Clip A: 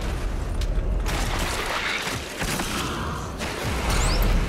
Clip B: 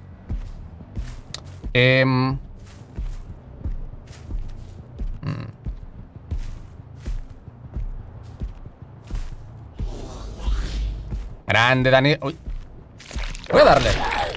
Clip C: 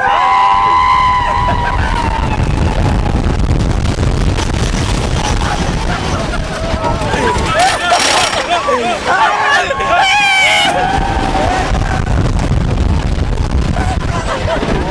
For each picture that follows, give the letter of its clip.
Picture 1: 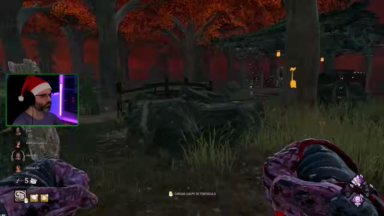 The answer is B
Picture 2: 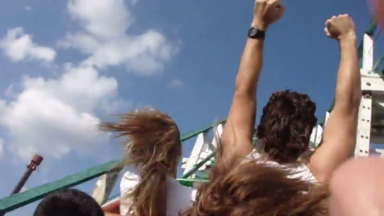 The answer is C